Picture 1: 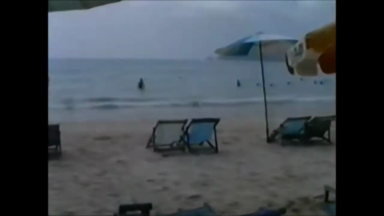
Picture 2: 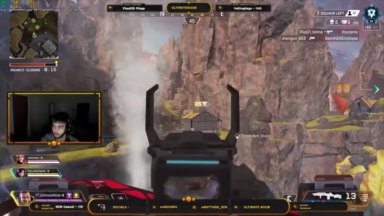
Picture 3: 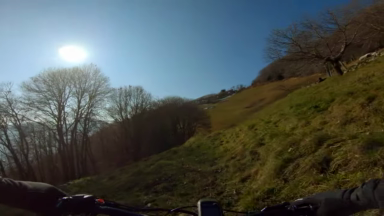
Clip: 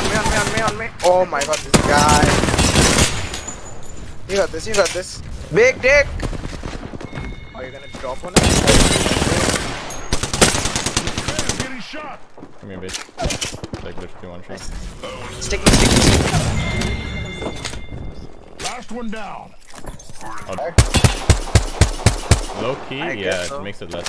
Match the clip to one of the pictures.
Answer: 2